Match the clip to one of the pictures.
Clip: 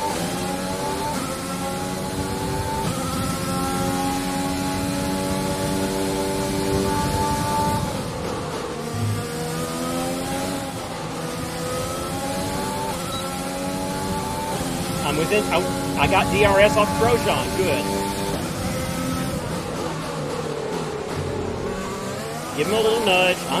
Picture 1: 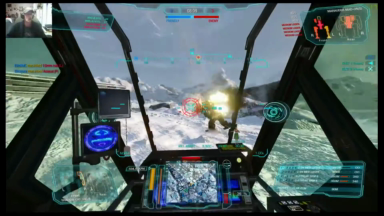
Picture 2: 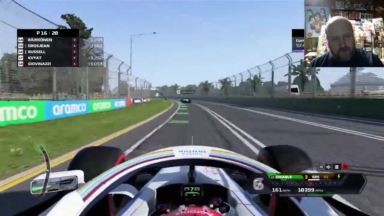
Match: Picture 2